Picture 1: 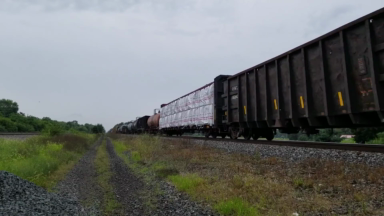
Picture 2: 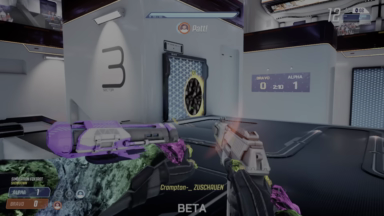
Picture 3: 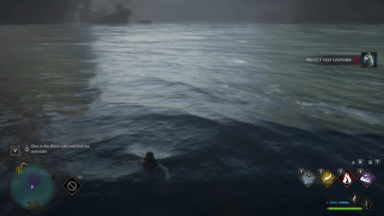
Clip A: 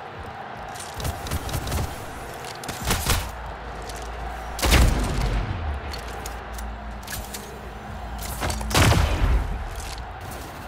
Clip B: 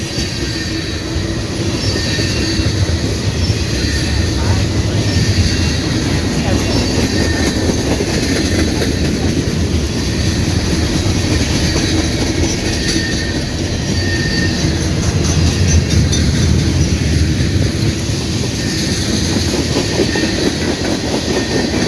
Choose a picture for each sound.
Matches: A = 2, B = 1